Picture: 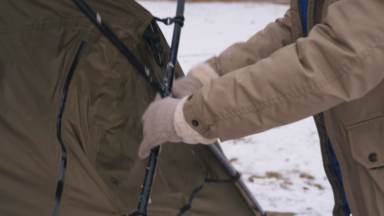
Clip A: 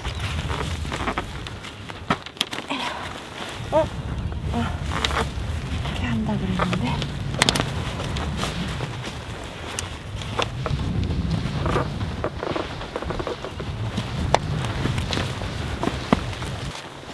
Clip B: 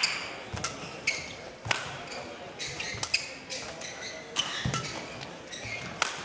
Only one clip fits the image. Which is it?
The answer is A